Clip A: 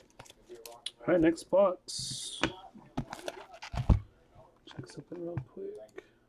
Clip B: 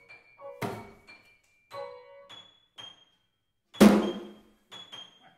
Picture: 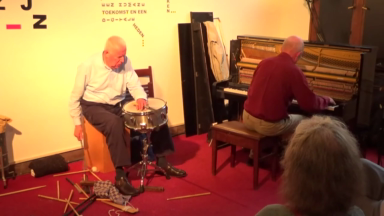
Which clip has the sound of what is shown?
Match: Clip B